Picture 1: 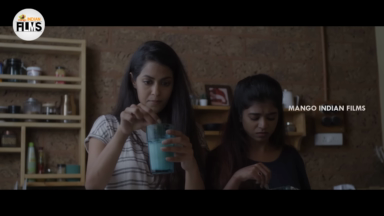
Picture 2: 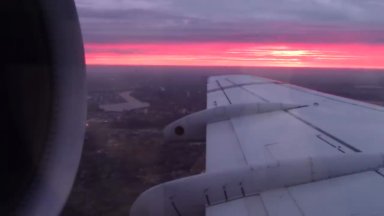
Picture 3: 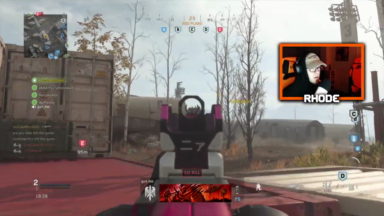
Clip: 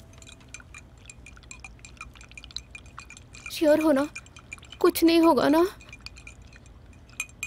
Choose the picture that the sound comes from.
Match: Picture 1